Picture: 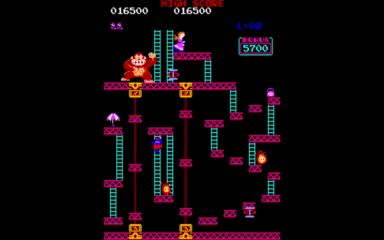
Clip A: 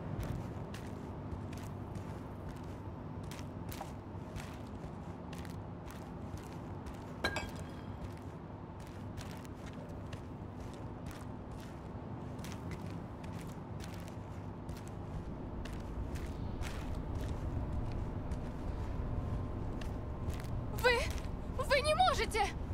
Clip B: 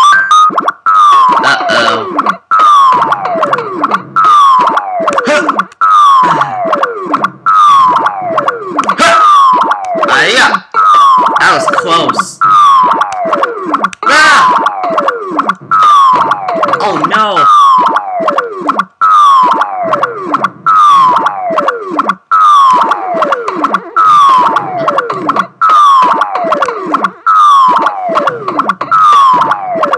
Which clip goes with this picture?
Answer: B